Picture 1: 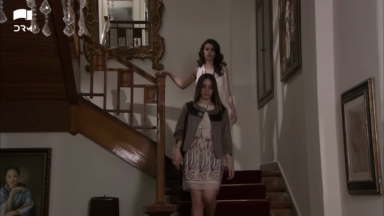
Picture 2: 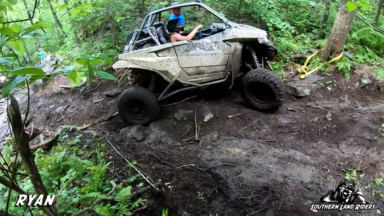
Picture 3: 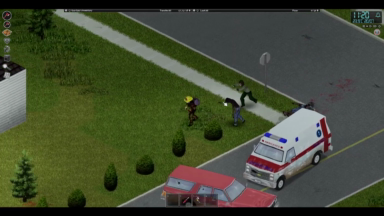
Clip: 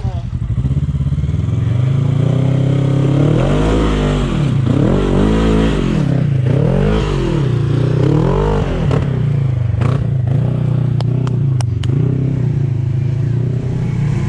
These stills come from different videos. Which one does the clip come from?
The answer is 2